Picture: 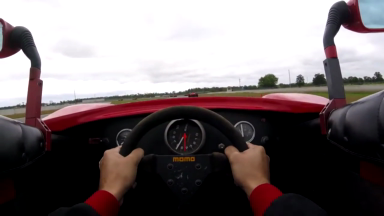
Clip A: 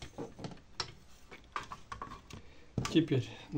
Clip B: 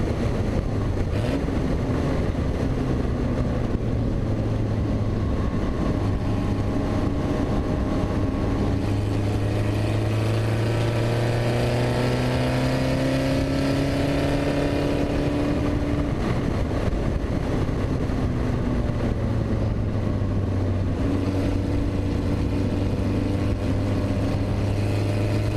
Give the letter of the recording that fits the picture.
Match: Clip B